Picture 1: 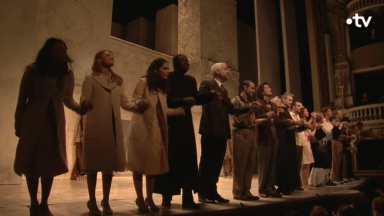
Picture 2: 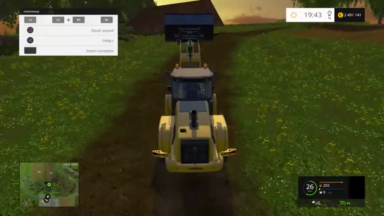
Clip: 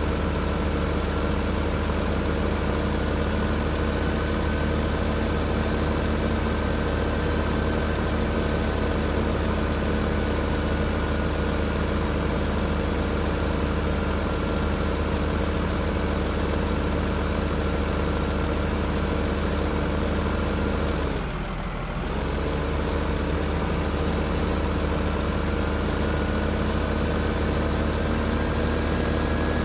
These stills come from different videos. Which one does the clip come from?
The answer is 2